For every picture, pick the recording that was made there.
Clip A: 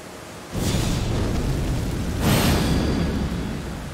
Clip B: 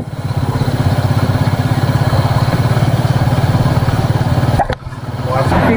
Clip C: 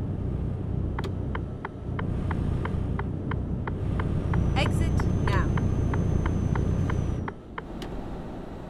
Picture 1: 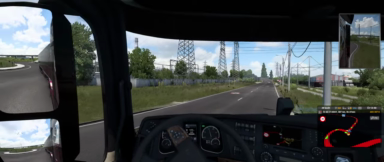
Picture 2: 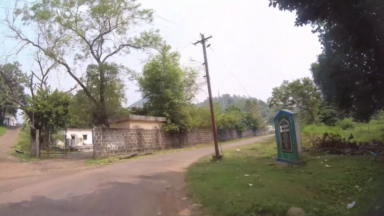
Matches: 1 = C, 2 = B